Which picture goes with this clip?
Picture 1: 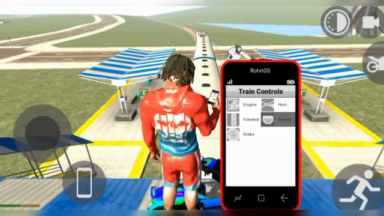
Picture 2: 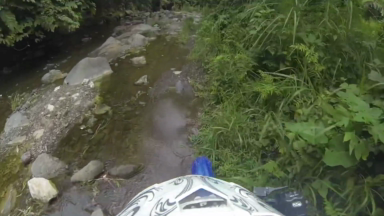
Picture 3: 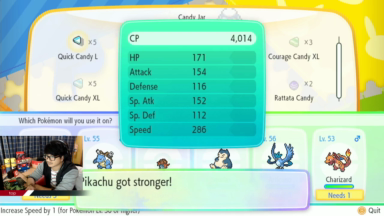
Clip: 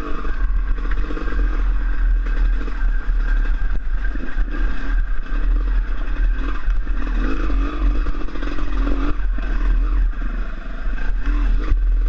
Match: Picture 2